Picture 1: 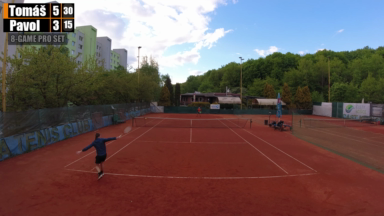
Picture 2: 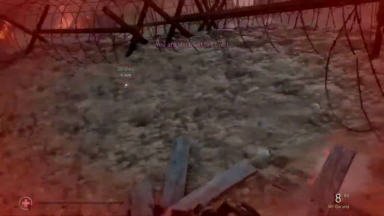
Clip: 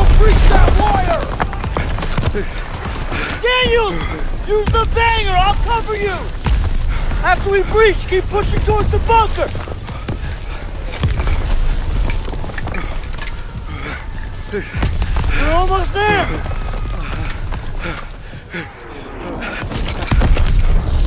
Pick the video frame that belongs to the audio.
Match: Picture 2